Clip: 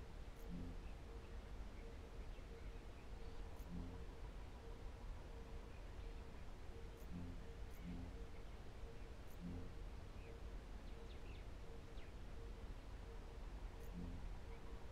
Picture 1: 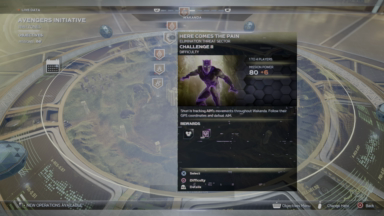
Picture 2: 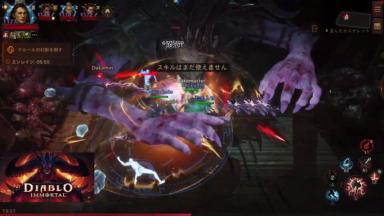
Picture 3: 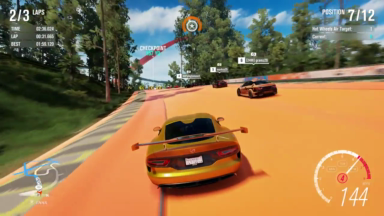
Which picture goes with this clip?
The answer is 1